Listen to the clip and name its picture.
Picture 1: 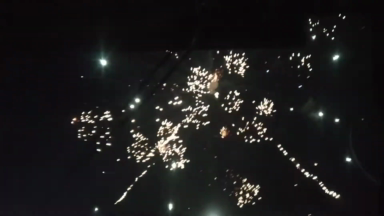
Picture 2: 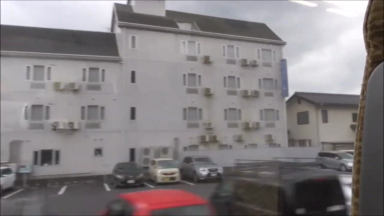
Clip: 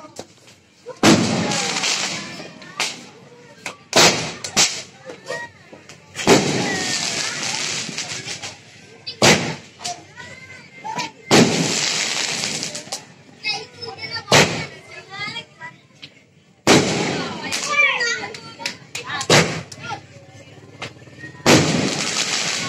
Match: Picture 1